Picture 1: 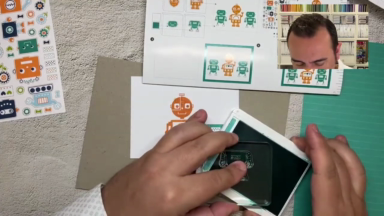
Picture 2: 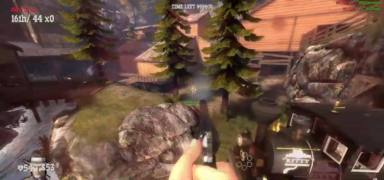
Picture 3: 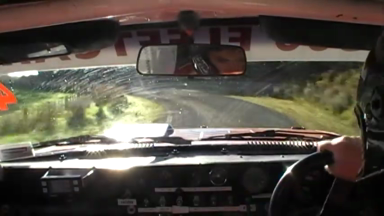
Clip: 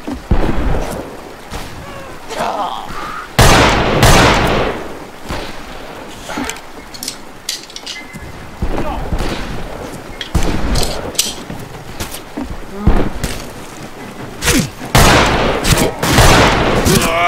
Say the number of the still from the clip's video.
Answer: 2